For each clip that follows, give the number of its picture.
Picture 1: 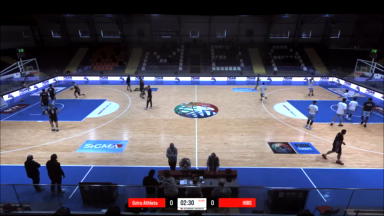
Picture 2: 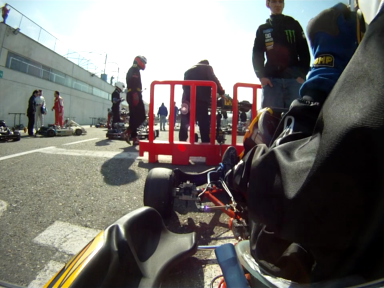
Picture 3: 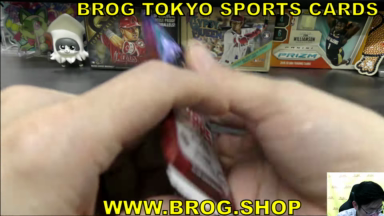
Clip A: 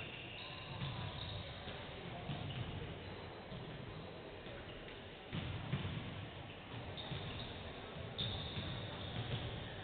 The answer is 1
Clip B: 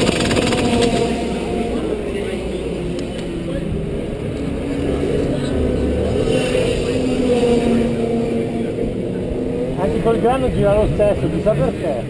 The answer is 2